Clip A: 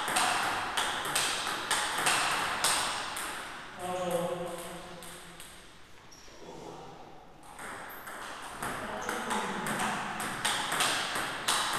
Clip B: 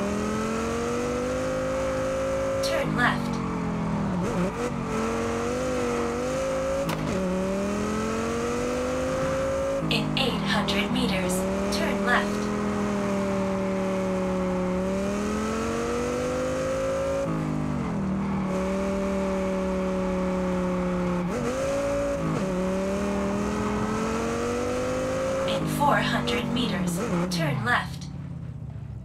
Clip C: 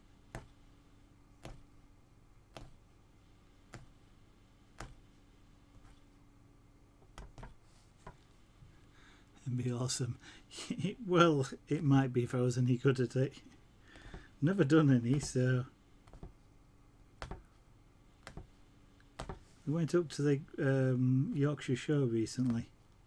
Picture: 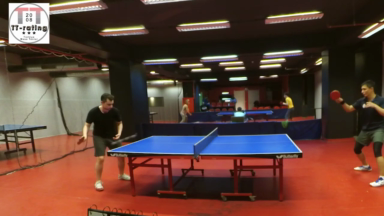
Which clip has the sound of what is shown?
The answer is A